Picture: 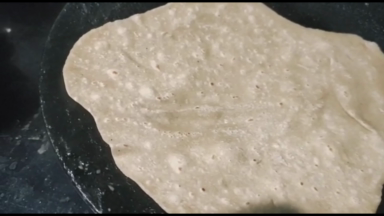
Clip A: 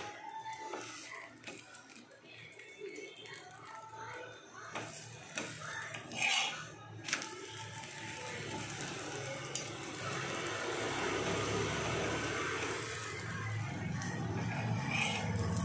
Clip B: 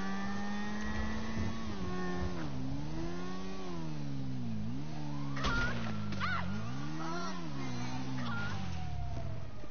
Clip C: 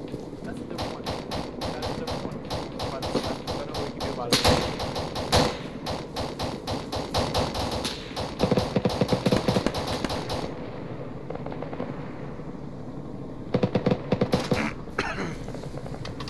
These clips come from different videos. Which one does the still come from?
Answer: A